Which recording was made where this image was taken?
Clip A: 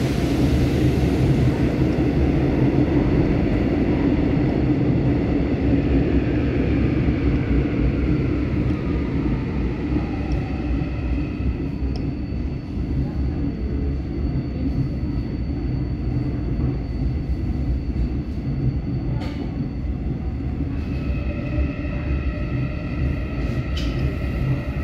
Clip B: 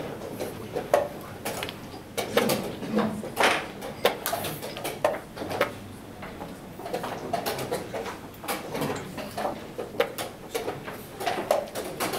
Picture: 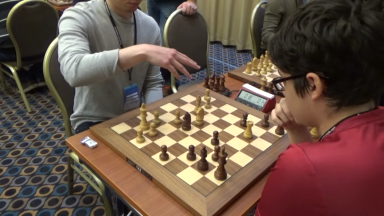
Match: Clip B